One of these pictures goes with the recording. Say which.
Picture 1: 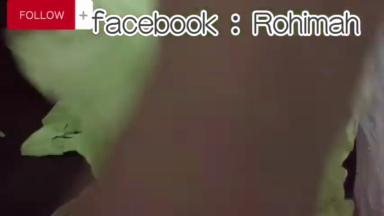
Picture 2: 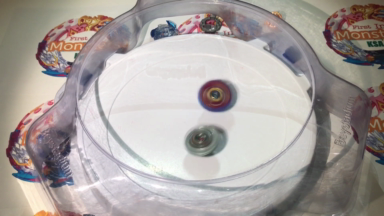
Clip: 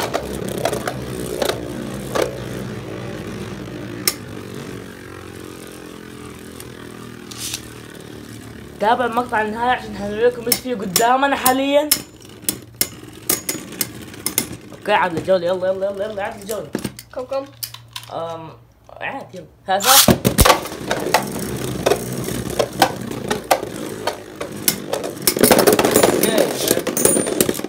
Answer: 2